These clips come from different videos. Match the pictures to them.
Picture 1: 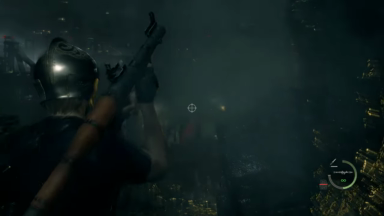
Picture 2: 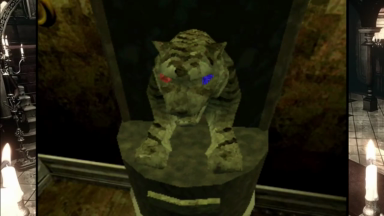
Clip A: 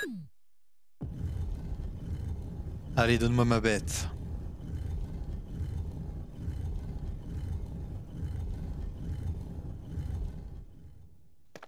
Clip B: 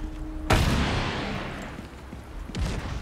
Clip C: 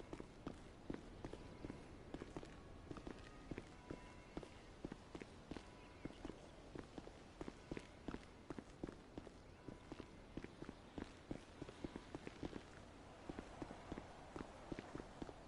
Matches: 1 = B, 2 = A